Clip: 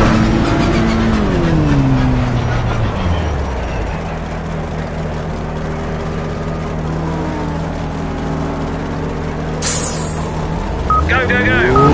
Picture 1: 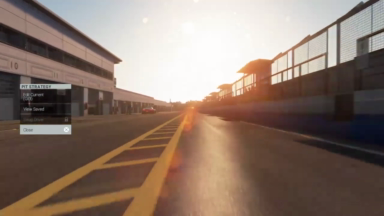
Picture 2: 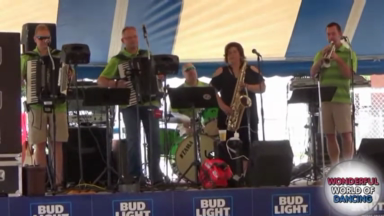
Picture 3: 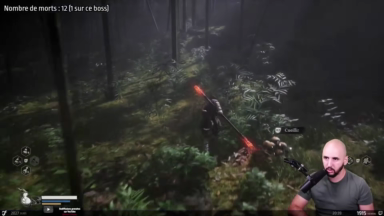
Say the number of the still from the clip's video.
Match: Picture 1